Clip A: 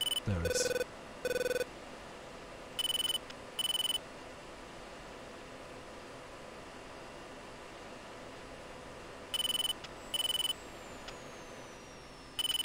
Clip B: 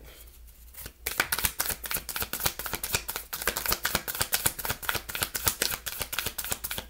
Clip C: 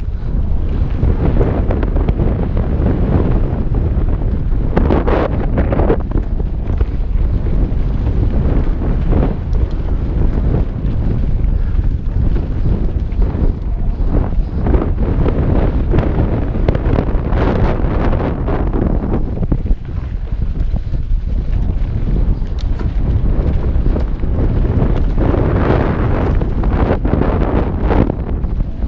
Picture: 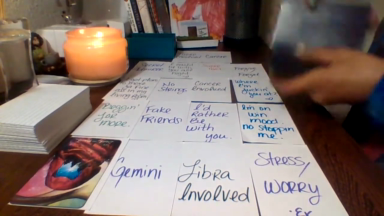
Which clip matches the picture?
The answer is B